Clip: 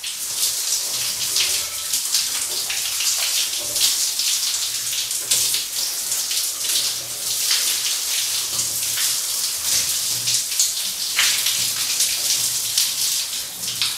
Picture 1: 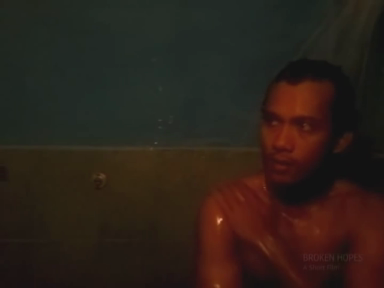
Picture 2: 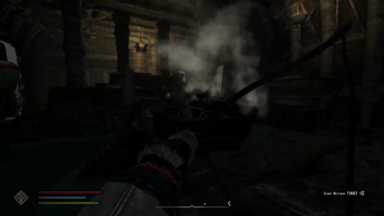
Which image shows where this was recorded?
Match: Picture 1